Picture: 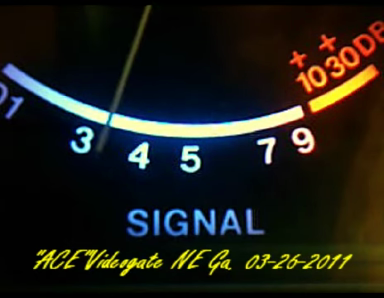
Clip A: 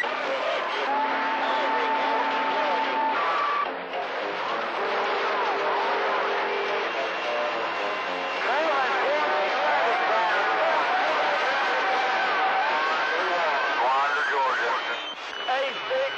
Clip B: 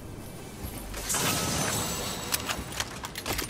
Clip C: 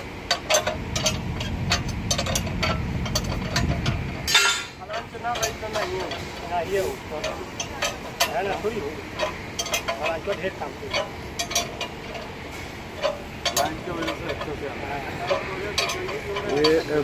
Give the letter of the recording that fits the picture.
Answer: A